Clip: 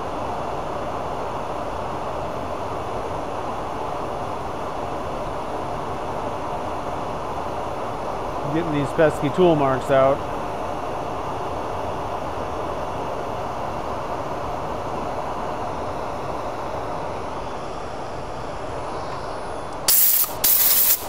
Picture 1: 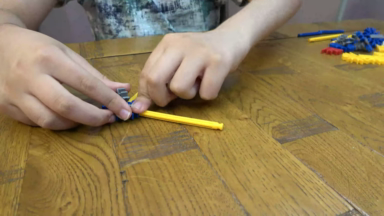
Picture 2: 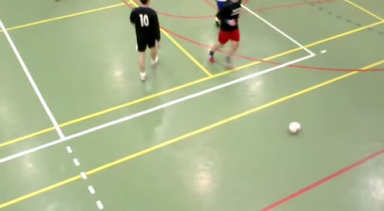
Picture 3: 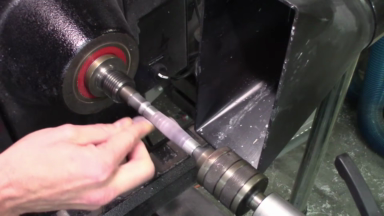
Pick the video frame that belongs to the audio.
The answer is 3